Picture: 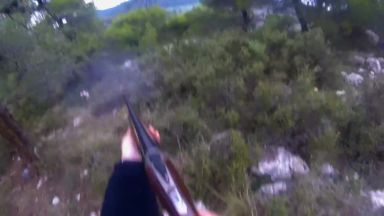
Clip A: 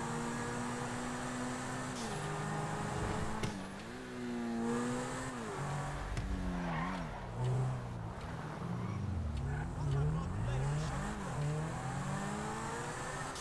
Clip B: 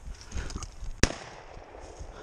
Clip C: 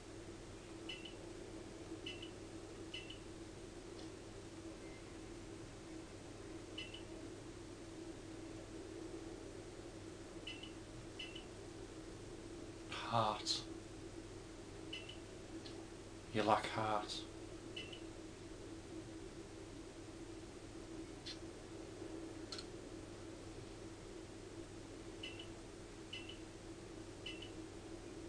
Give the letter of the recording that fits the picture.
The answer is B